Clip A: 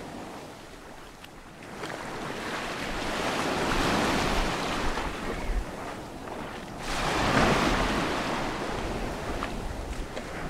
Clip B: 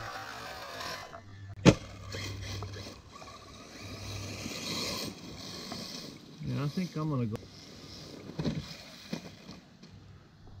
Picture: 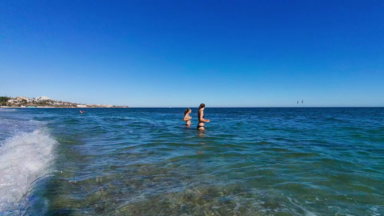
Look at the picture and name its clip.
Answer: A